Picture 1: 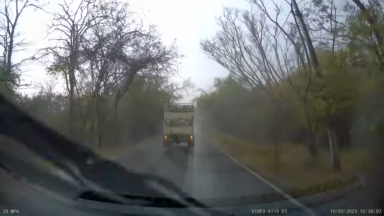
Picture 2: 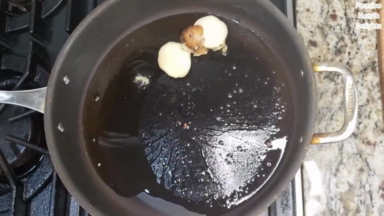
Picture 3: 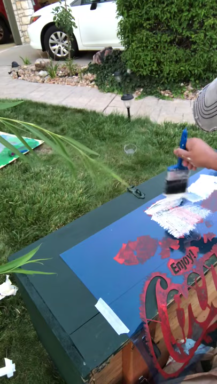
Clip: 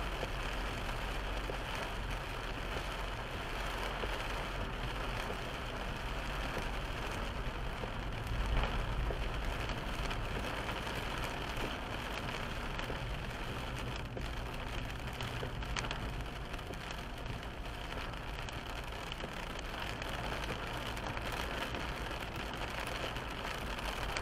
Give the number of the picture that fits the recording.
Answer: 1